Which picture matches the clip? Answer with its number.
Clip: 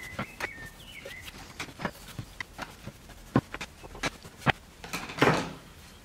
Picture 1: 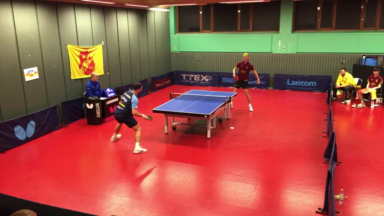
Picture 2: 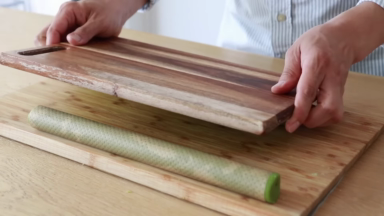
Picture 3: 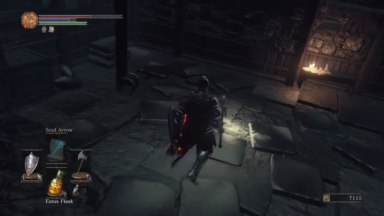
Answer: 2